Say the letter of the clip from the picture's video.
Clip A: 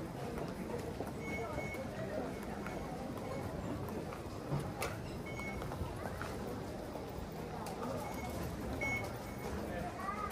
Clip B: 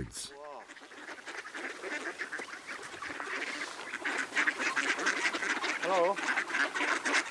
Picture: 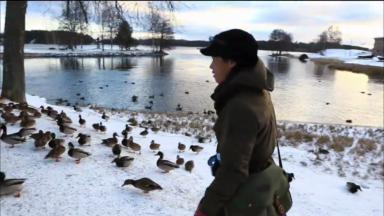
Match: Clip B